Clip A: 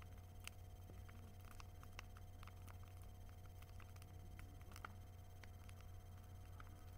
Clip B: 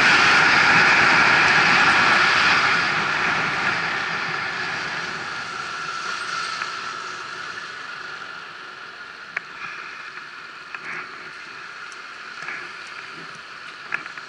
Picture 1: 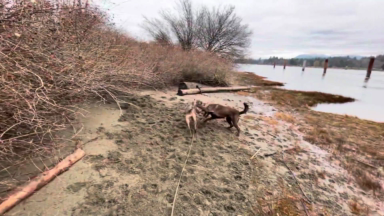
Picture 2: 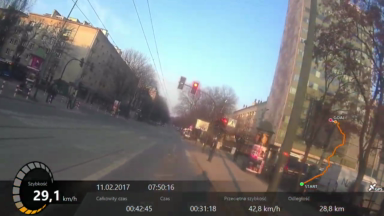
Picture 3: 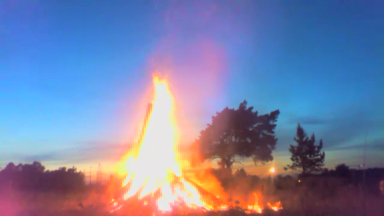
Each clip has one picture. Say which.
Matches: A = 3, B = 2